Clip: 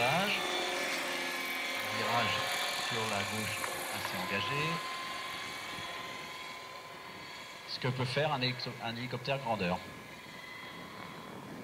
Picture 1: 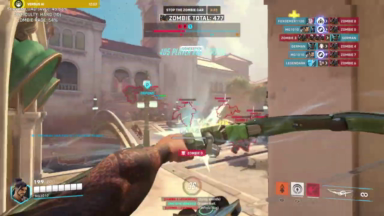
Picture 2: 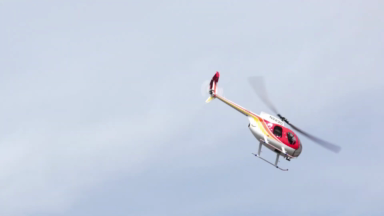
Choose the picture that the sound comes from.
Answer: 2